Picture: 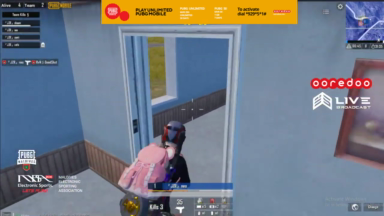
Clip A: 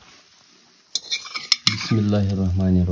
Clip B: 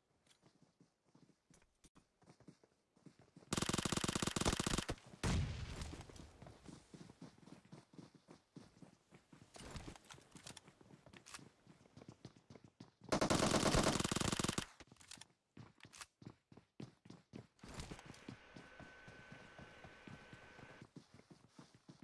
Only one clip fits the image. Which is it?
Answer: B